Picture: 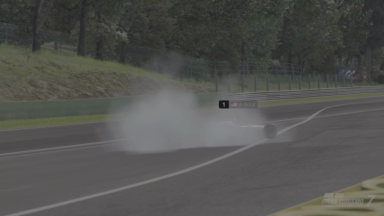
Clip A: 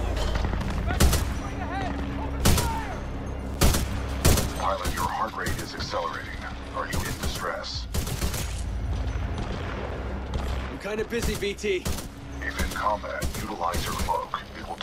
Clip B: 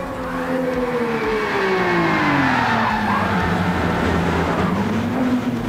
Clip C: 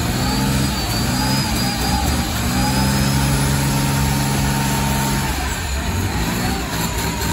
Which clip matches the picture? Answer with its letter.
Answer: B